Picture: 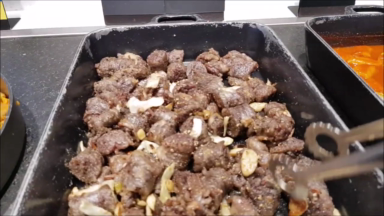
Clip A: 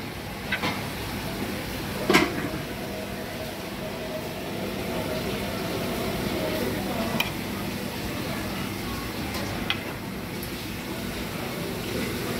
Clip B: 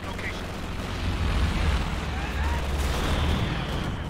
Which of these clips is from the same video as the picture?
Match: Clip A